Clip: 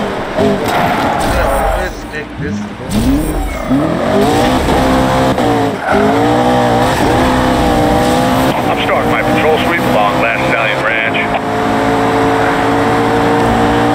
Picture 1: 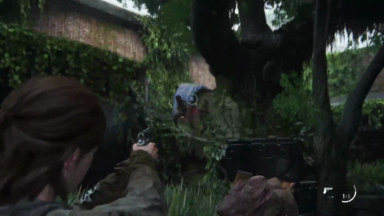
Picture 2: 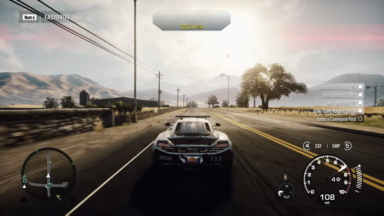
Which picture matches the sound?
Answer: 2